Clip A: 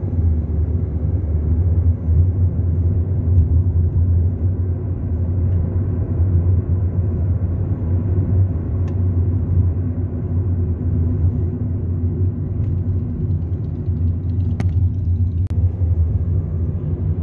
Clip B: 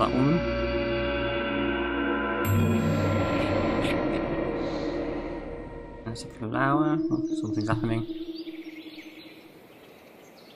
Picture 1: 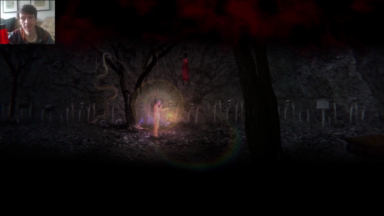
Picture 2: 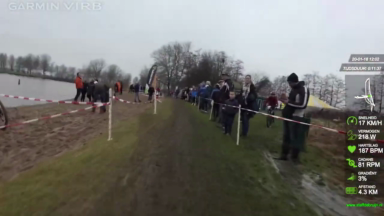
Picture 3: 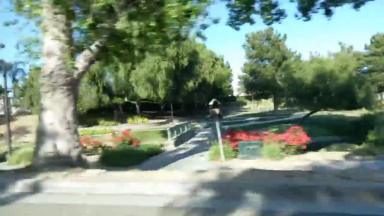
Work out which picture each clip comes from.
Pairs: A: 3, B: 1